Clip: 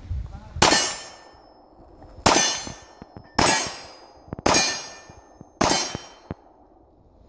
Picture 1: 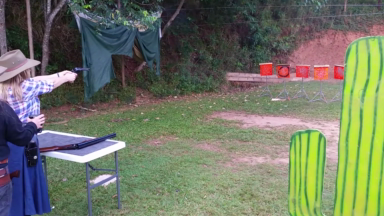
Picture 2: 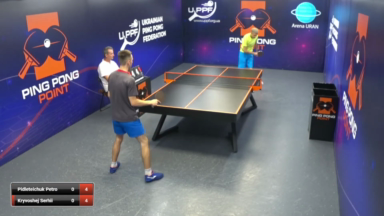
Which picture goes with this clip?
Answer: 1